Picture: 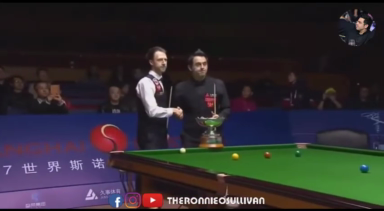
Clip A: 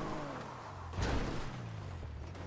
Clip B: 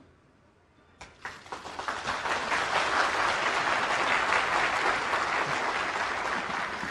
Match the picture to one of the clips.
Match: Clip B